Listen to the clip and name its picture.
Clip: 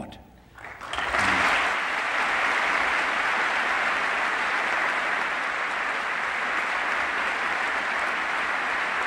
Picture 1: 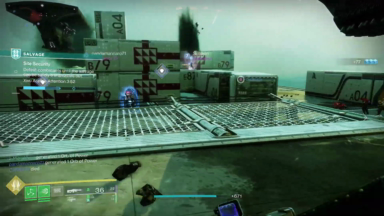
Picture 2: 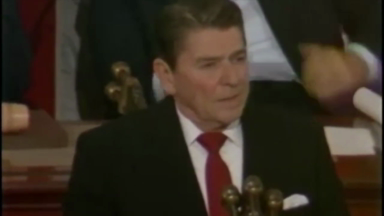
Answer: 2